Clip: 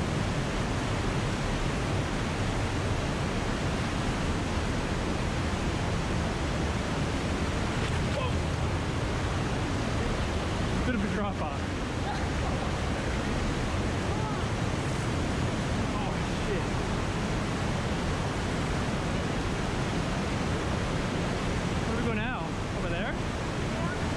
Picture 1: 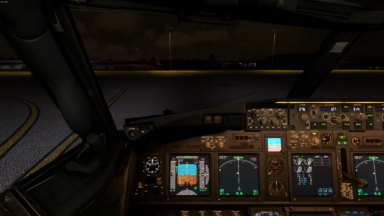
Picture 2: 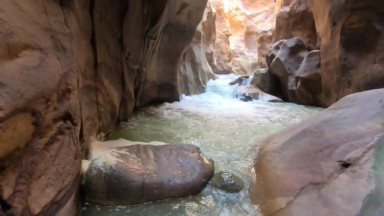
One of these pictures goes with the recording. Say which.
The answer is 2